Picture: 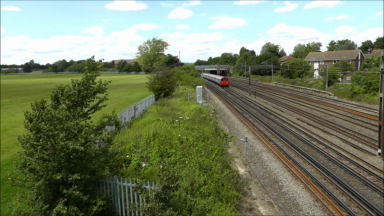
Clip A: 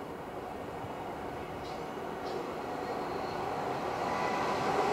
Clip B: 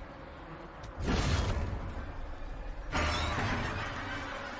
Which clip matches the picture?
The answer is A